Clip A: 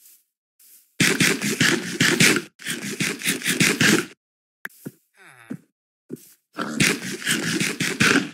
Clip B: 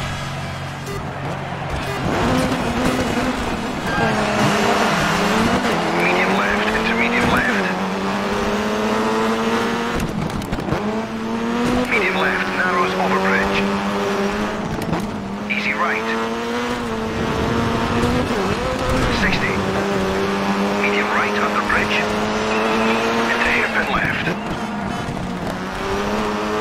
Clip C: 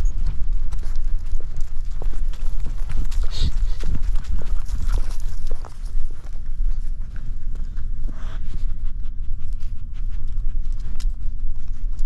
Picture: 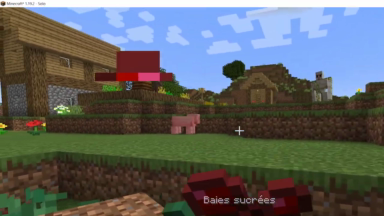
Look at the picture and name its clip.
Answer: A